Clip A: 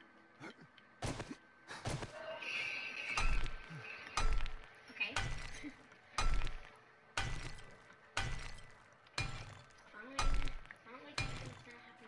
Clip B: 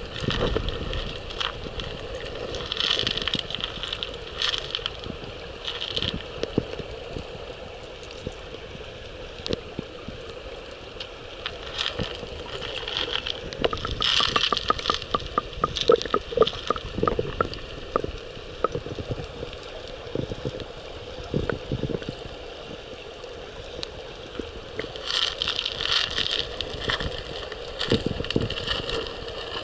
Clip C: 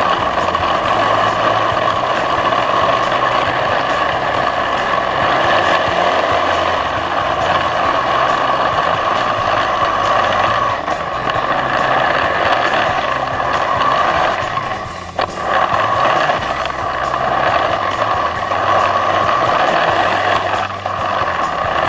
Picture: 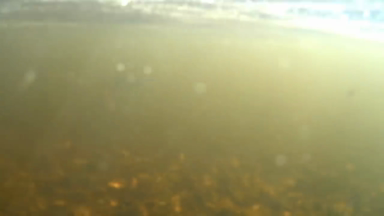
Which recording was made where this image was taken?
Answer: B